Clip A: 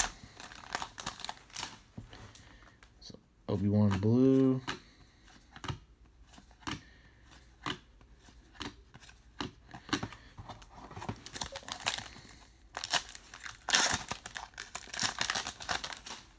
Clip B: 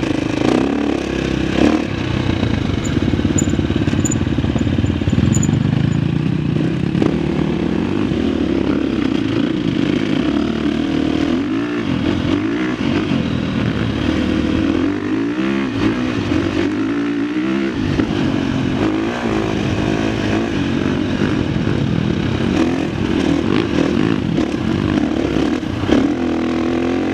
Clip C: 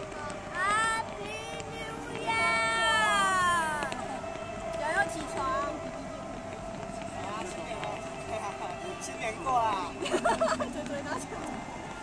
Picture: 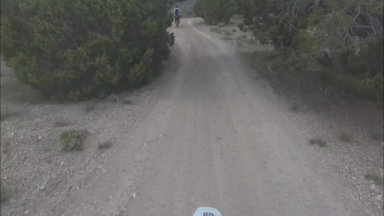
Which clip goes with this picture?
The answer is B